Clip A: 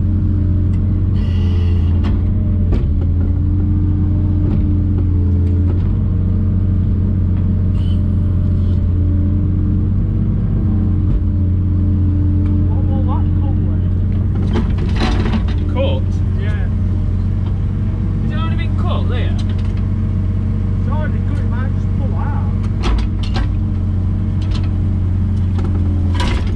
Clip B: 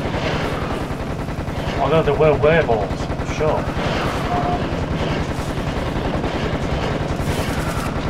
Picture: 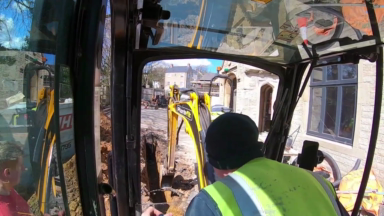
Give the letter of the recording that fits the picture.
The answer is A